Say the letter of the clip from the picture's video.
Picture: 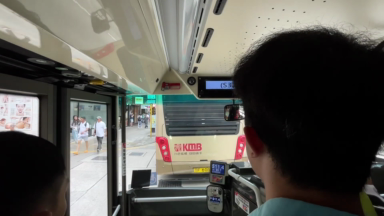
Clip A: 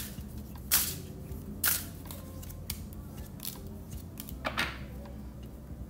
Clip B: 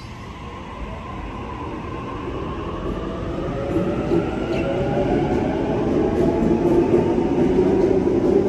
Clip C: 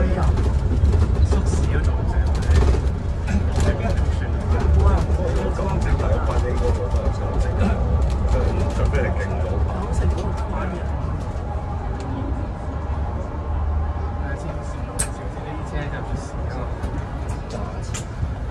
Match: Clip C